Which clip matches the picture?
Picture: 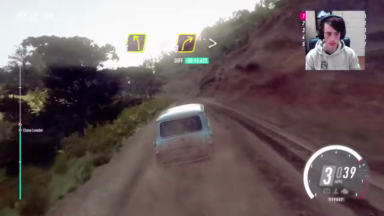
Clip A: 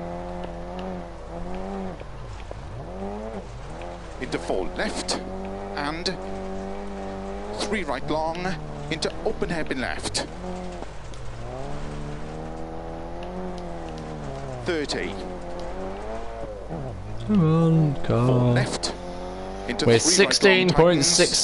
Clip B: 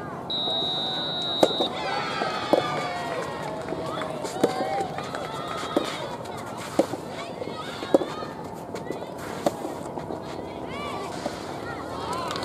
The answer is A